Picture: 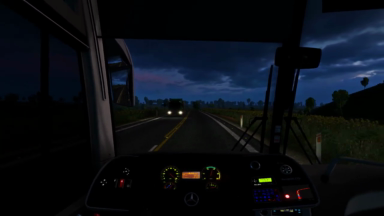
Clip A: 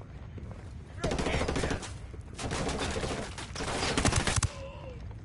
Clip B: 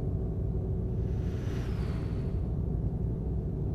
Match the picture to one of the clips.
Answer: B